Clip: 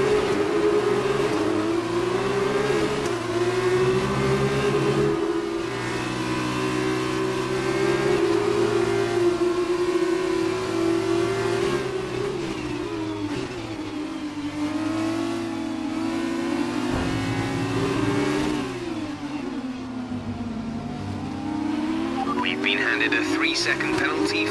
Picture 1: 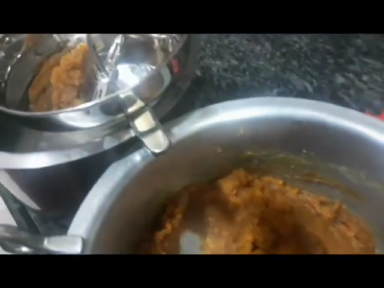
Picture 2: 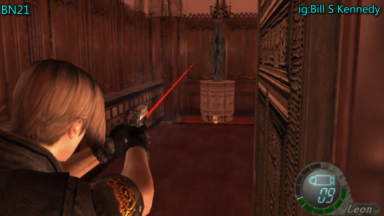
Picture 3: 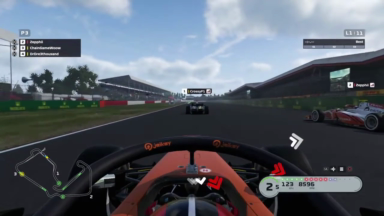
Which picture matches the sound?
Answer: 3